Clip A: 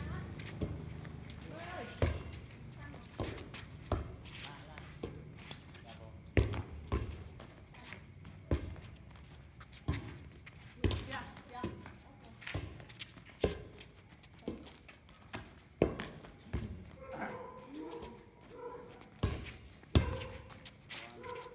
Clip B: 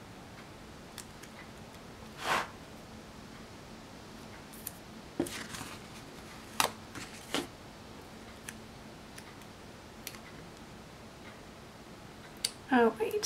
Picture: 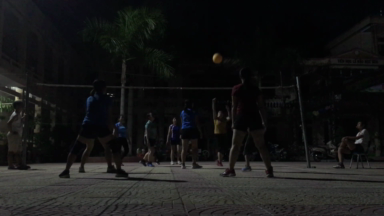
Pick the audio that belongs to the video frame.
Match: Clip A